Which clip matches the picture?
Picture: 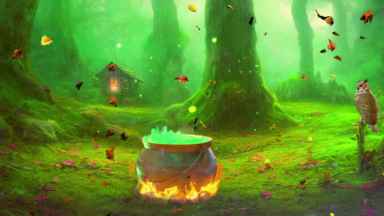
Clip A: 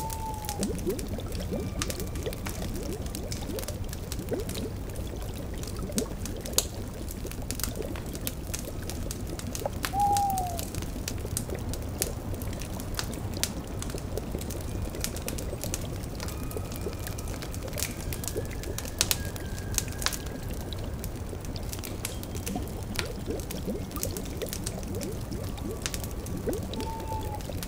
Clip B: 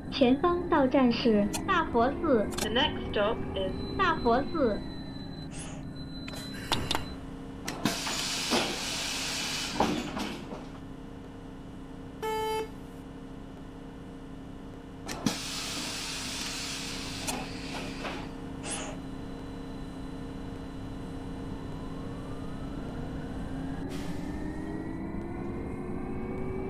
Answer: A